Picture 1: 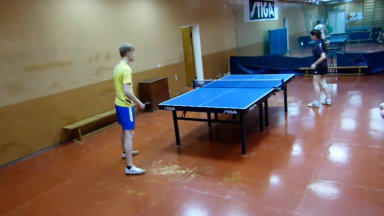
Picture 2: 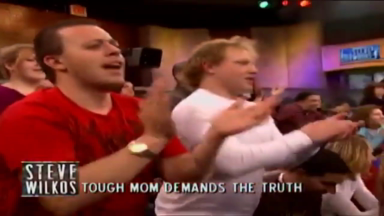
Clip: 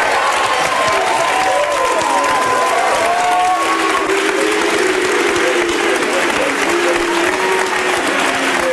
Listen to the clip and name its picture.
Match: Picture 2